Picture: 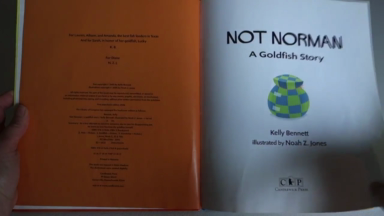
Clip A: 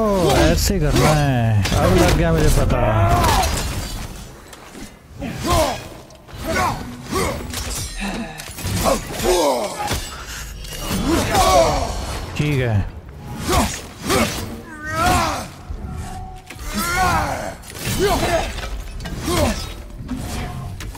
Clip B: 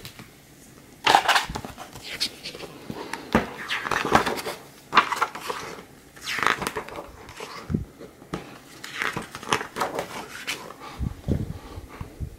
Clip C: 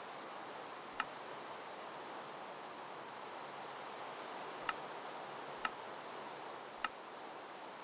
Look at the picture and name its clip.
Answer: B